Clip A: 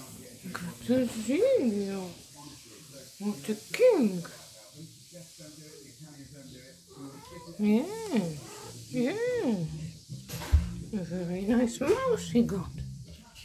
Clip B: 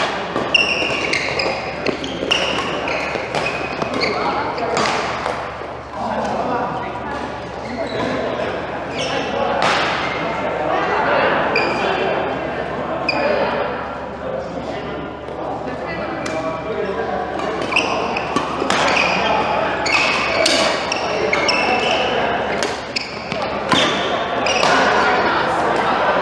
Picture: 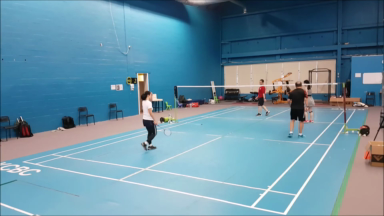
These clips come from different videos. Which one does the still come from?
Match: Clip B